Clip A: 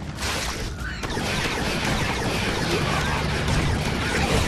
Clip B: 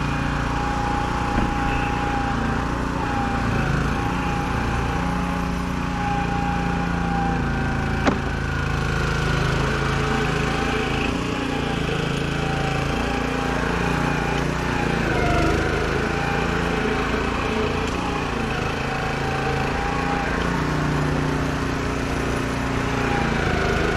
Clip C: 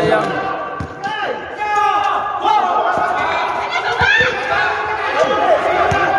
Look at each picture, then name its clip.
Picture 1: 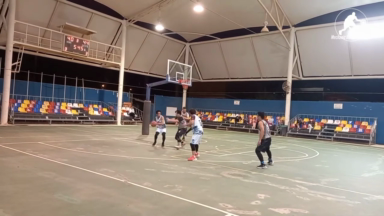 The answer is C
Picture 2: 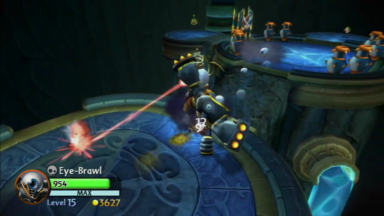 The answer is A